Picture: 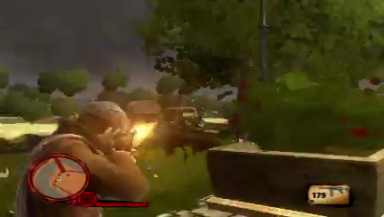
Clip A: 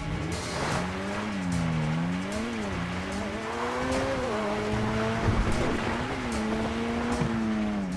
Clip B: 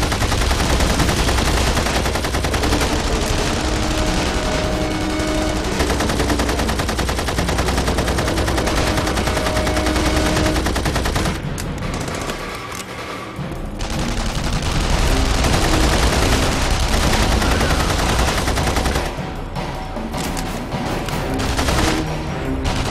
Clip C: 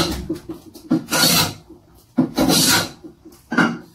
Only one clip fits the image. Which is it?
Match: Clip B